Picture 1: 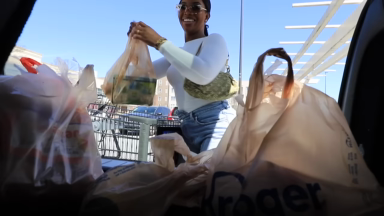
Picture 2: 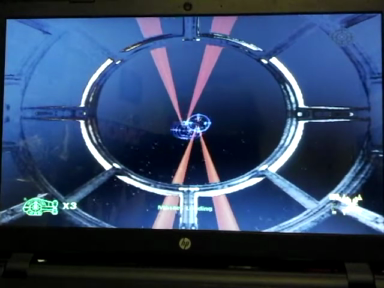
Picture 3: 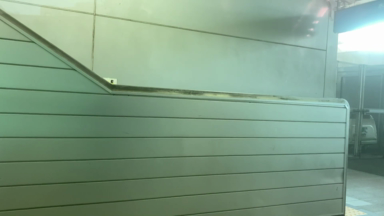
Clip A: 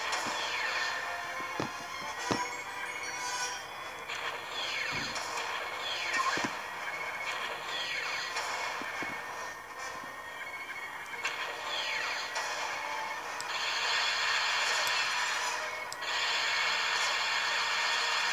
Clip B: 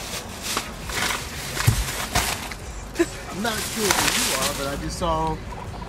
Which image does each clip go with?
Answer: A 2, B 1